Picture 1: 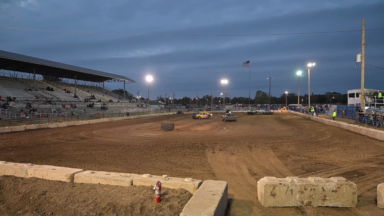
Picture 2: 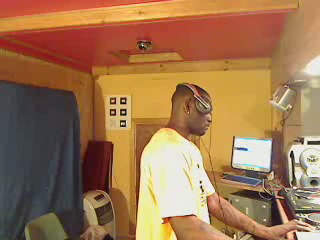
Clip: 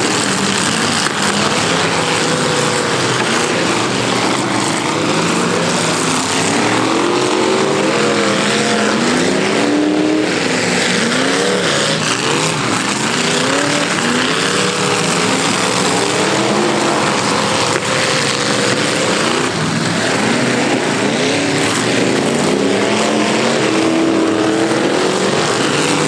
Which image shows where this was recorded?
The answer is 1